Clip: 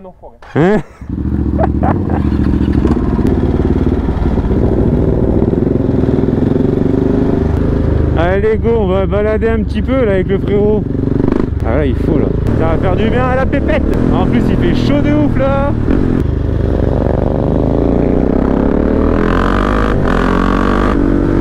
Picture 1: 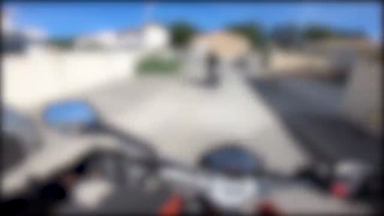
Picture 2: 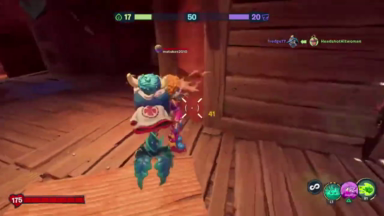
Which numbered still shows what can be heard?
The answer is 1